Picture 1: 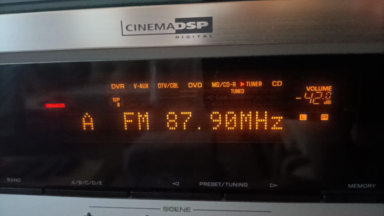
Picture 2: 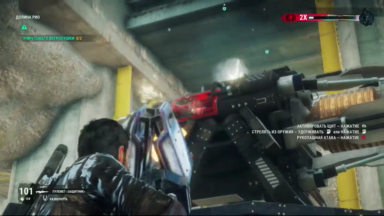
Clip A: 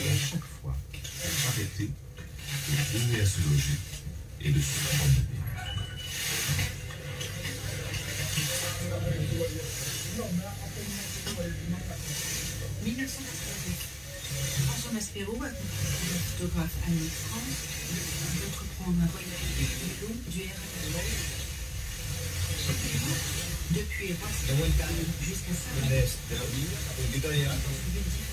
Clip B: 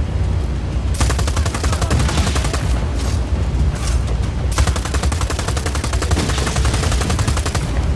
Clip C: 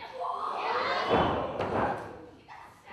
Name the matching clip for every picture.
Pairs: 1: A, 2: B